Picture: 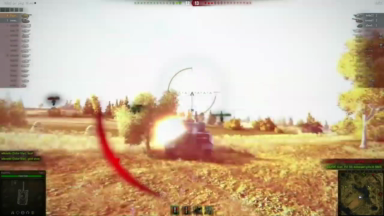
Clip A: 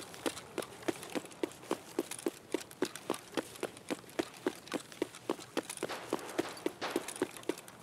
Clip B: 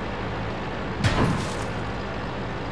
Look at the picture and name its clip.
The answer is B